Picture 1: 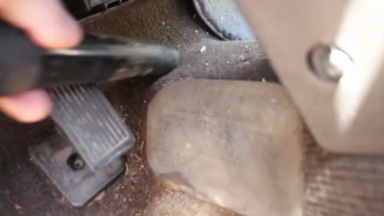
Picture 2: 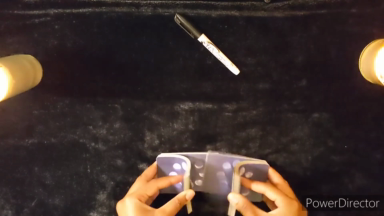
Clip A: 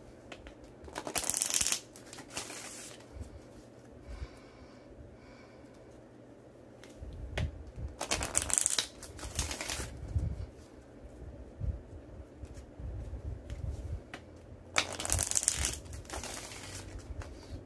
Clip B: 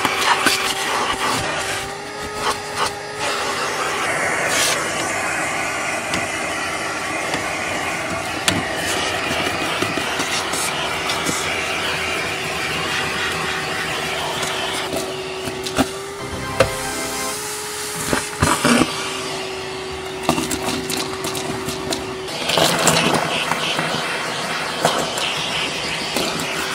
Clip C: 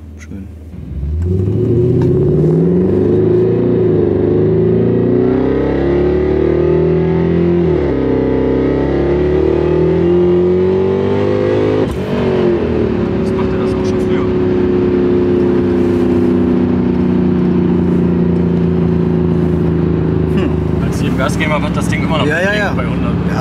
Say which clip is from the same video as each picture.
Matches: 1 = B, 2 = A